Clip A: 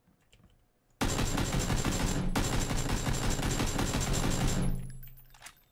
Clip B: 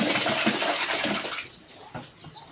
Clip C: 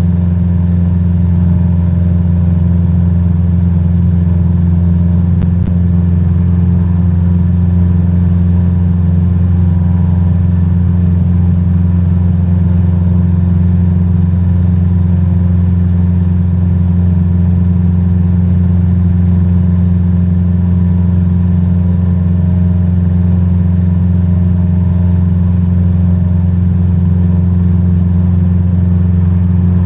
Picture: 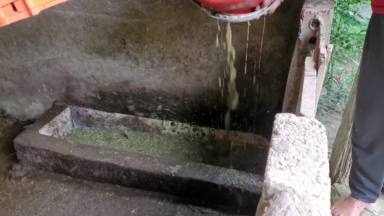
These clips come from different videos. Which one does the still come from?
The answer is B